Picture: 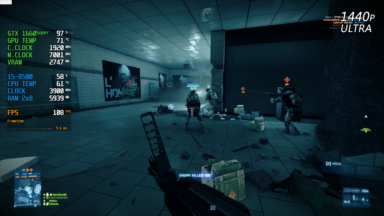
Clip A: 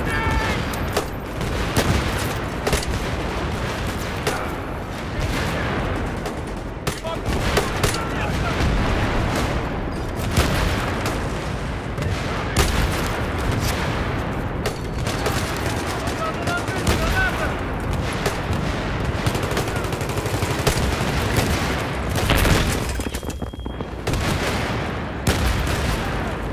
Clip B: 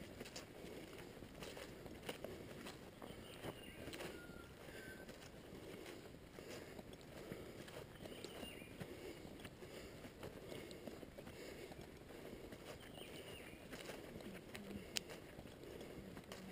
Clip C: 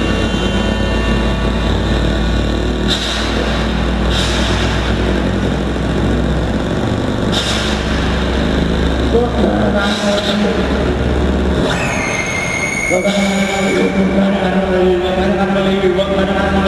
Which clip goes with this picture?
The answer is A